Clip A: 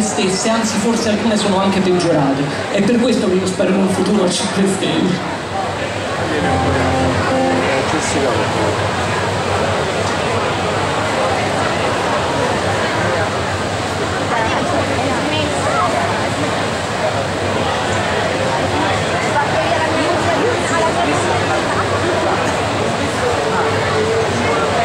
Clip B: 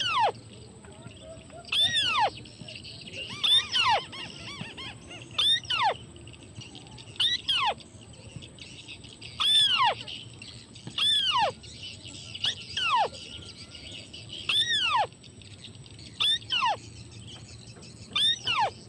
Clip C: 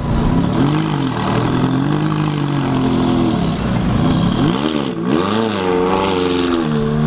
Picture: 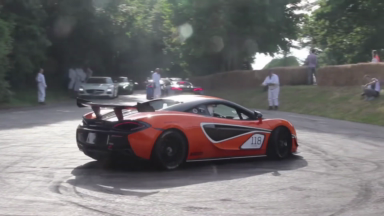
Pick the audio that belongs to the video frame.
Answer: C